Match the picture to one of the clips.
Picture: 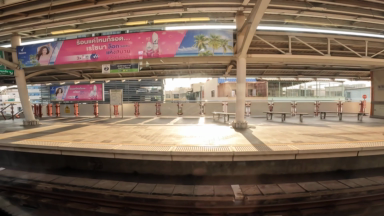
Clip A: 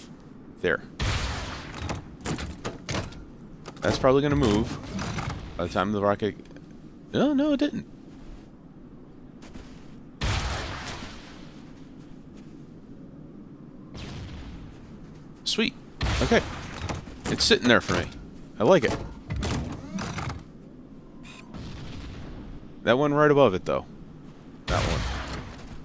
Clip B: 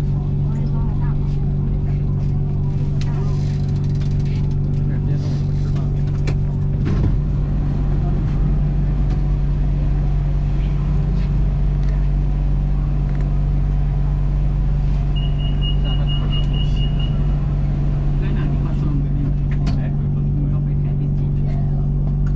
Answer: B